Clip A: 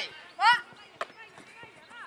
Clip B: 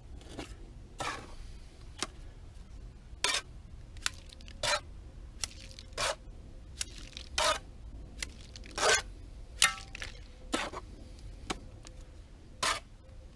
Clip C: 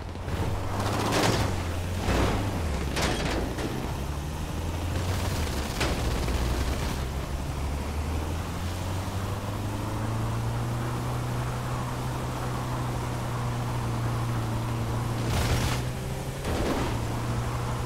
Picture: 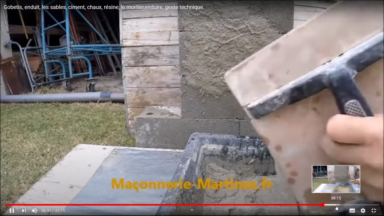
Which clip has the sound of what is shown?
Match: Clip B